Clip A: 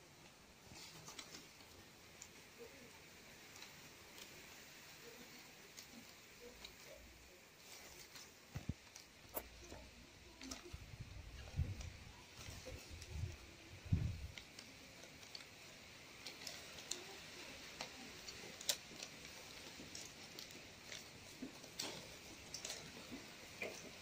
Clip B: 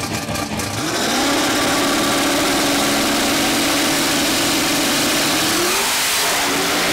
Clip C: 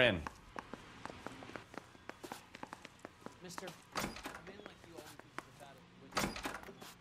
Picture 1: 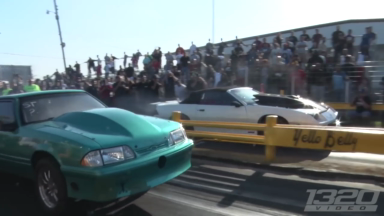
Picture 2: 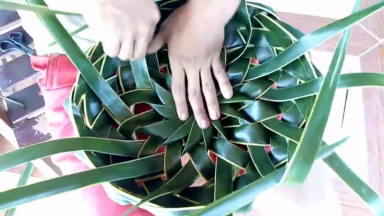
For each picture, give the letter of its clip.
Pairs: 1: B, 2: A